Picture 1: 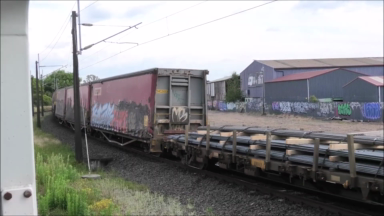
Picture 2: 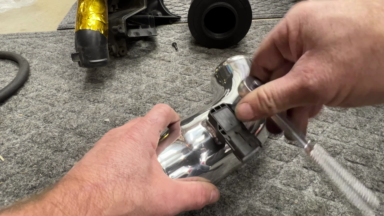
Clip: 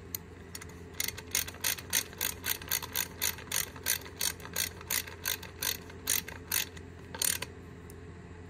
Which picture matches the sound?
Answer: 2